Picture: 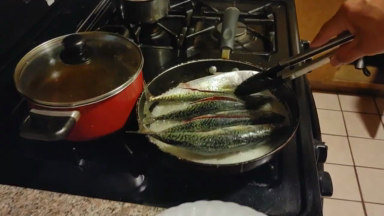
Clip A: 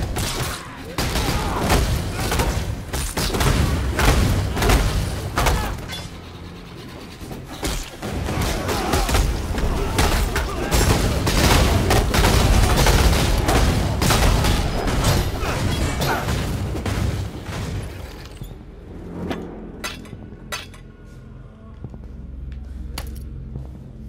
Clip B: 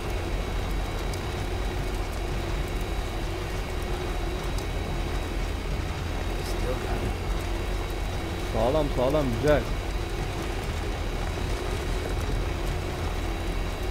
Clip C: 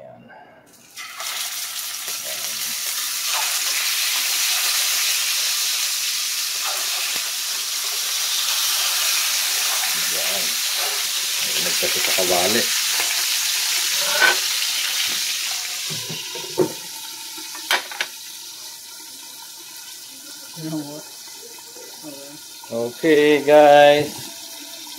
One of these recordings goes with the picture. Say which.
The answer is C